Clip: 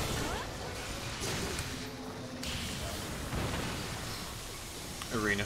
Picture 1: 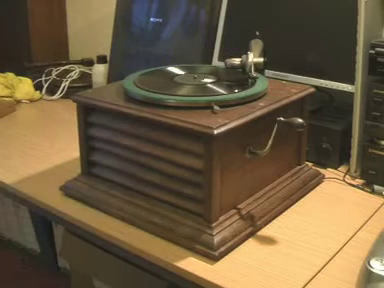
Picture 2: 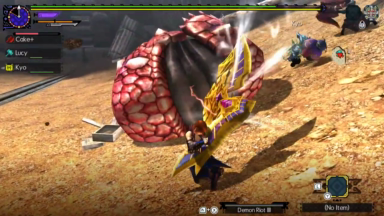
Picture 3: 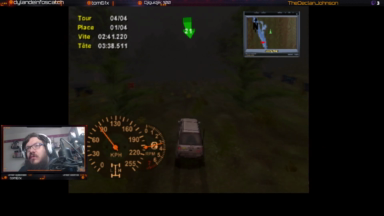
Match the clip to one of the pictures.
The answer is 2